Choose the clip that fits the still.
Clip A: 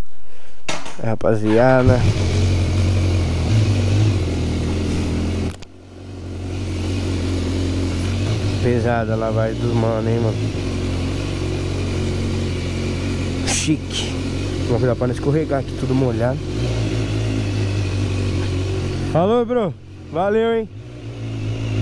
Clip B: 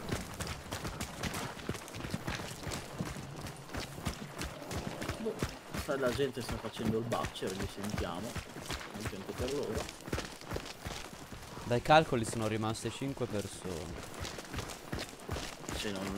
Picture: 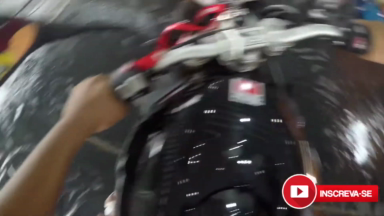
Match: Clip A